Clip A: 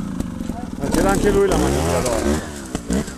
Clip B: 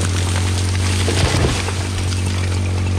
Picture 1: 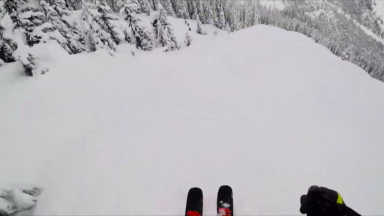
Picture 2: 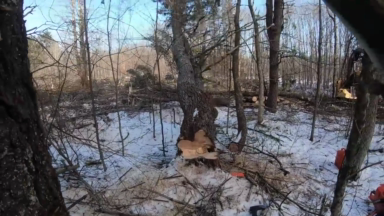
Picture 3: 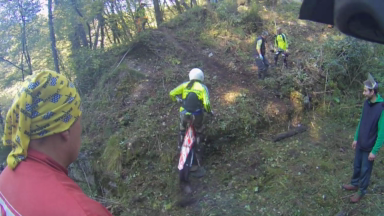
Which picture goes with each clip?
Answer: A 3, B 2